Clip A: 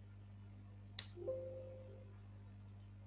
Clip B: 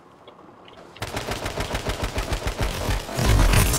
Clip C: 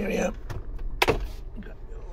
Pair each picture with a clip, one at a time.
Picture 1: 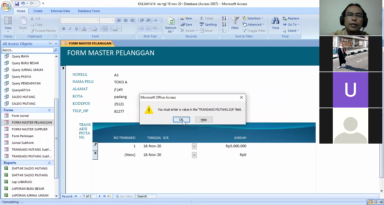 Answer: A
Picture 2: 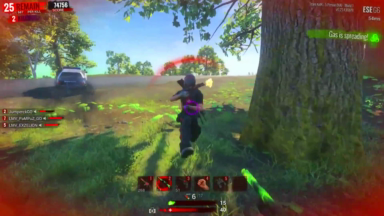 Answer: B